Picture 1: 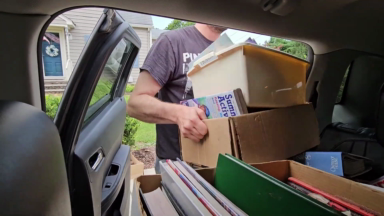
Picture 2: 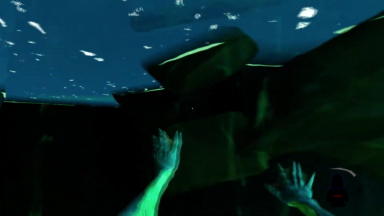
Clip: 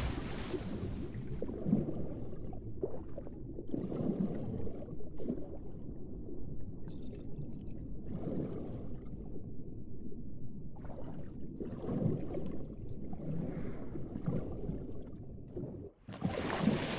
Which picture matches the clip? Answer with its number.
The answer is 2